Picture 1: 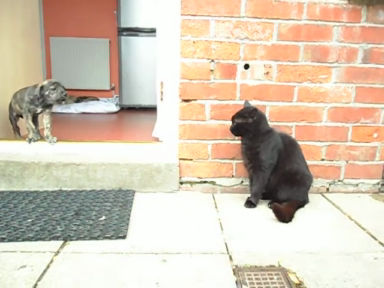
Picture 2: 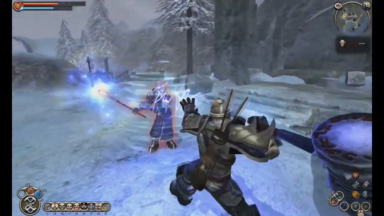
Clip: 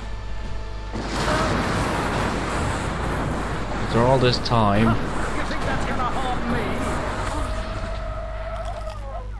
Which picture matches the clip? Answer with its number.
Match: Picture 2